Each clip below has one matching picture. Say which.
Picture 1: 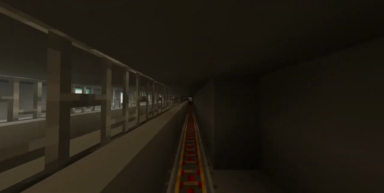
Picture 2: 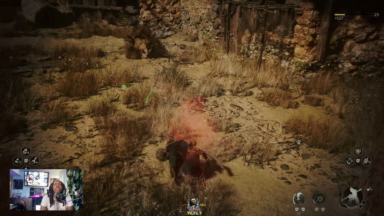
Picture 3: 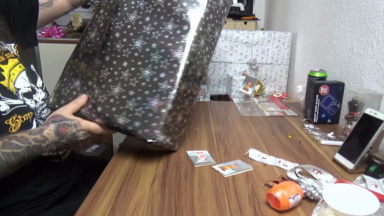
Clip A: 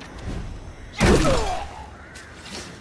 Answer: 2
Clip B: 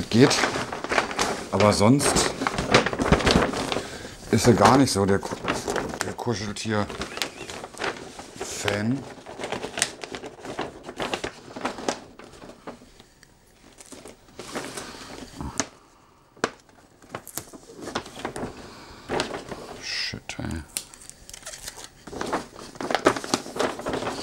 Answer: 3